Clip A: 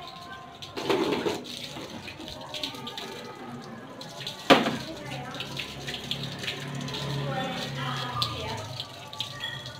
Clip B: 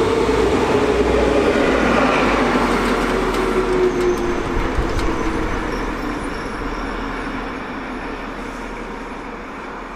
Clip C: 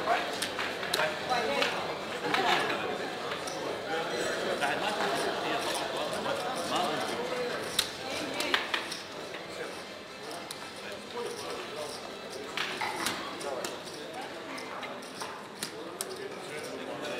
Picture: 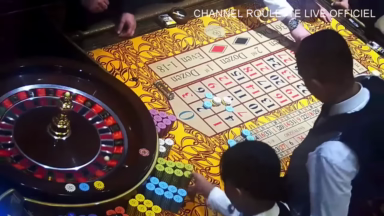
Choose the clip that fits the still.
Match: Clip C